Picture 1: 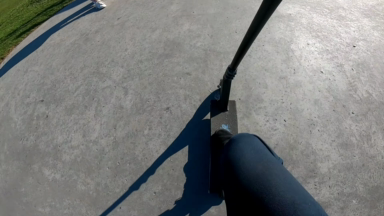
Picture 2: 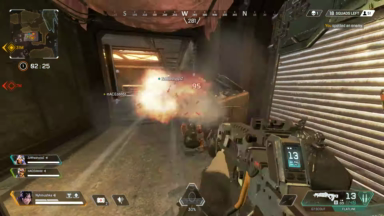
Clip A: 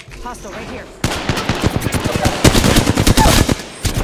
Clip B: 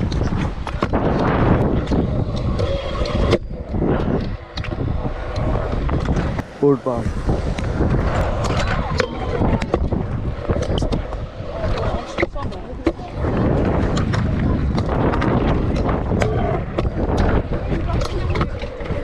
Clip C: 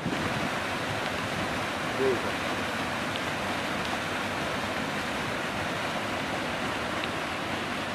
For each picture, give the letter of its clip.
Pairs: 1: B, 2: A